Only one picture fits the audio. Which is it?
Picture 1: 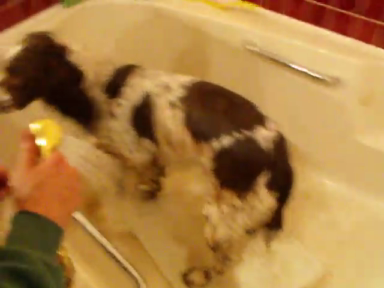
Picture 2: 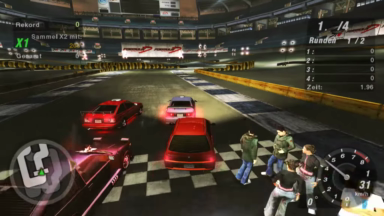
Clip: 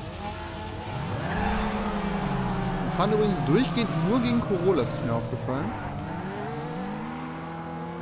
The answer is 2